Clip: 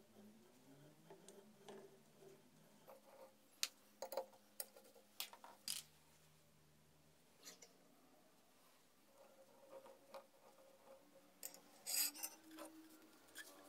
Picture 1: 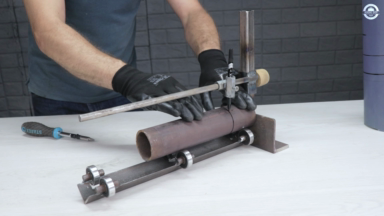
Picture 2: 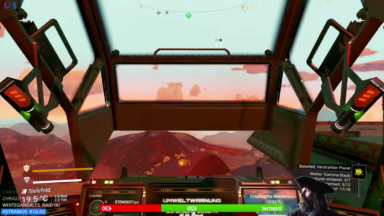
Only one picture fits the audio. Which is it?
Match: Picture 1